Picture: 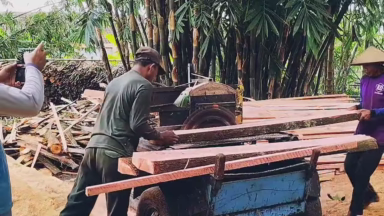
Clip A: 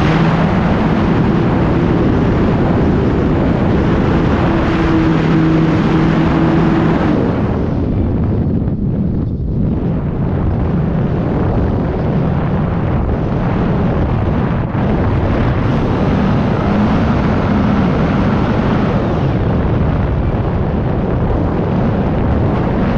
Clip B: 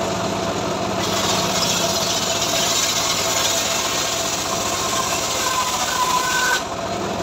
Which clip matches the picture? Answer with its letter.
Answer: B